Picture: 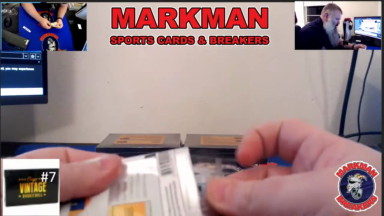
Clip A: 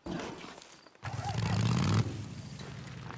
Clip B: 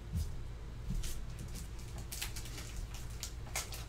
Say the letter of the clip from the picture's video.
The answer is B